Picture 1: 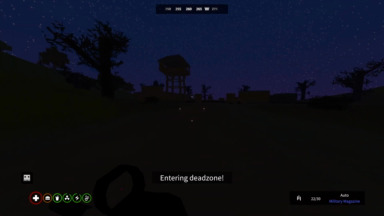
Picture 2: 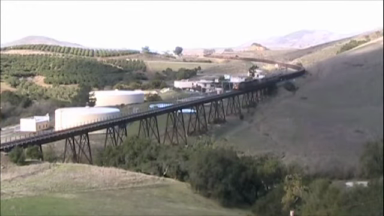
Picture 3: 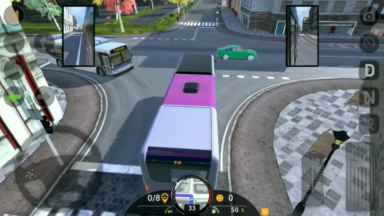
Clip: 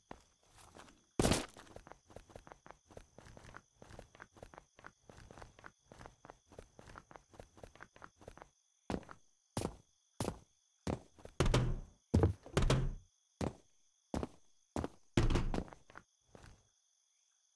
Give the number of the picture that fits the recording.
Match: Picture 1